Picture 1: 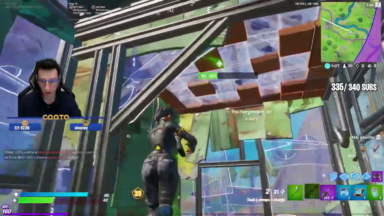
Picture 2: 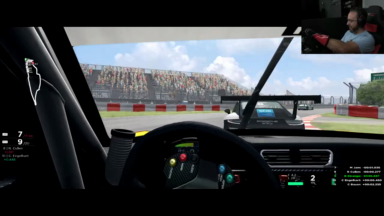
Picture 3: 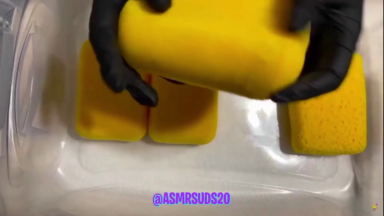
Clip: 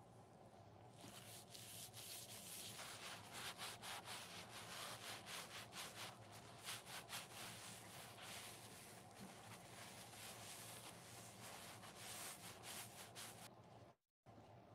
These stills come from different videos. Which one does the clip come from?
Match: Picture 3